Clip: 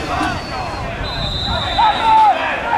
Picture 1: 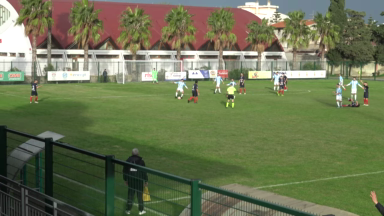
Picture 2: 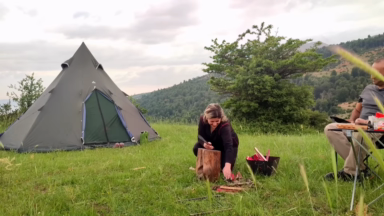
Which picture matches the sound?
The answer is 1